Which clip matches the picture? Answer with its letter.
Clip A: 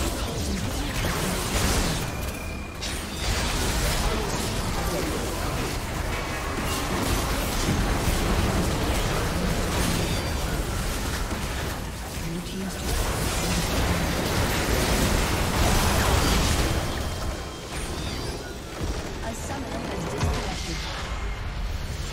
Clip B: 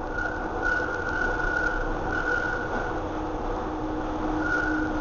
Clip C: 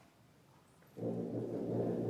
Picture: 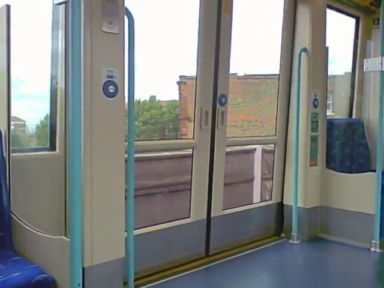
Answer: B